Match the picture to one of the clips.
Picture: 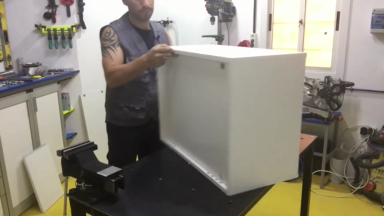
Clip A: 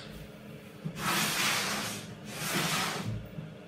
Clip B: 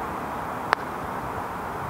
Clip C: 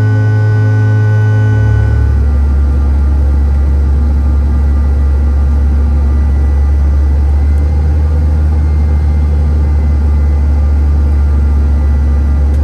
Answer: A